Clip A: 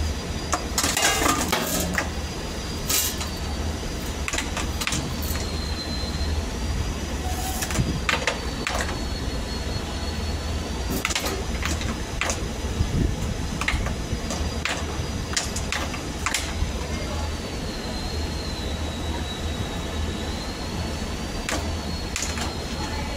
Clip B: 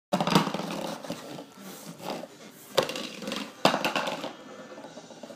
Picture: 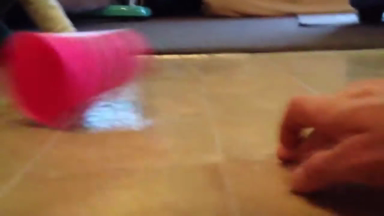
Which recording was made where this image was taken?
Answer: B